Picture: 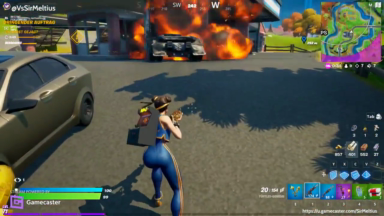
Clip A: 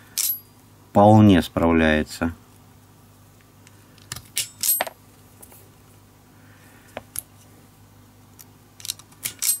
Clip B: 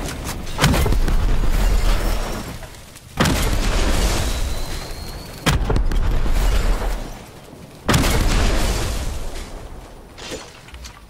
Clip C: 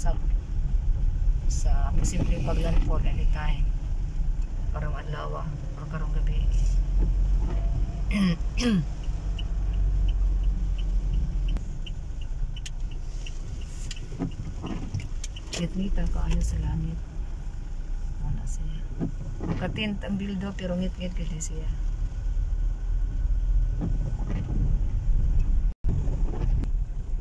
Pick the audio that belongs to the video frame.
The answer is B